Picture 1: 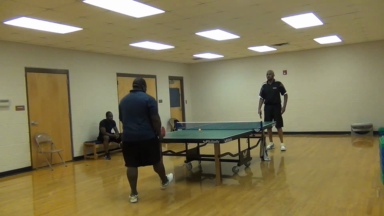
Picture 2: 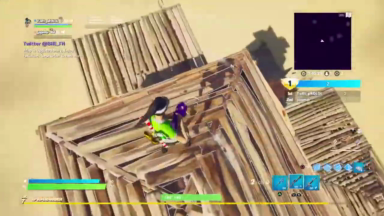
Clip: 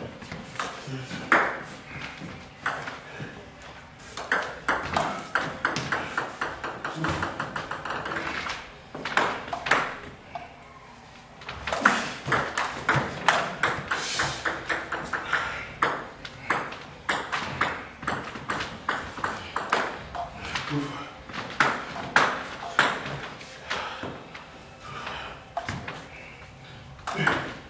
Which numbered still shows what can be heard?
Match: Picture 1